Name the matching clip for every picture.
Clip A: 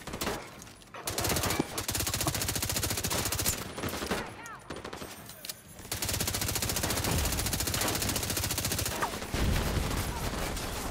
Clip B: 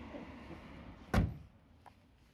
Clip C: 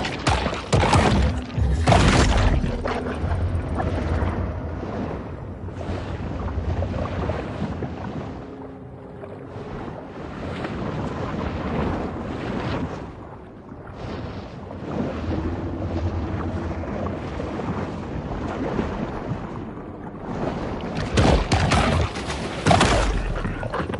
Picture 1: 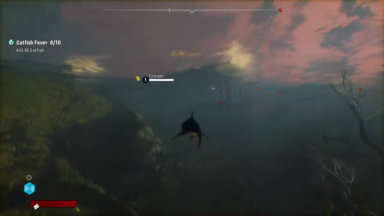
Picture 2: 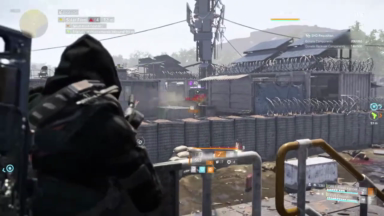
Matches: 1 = C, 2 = A